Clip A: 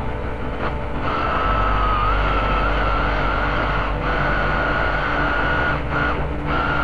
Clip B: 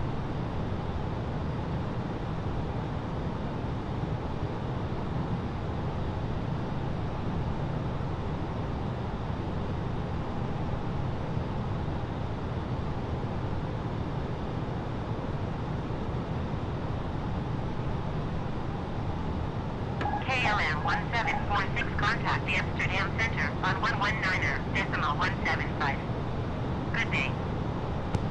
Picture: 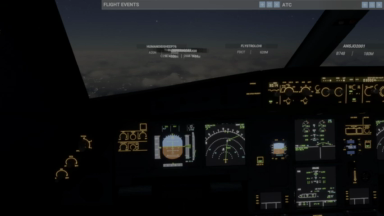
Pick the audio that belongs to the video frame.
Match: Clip B